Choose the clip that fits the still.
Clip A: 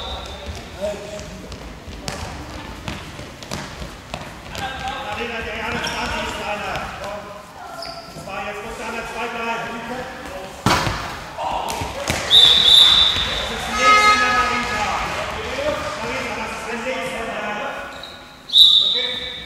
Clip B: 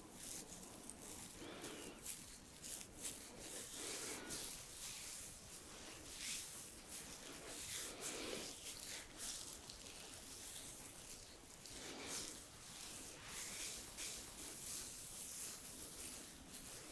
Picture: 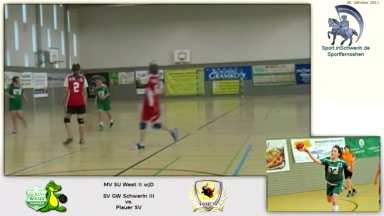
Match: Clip A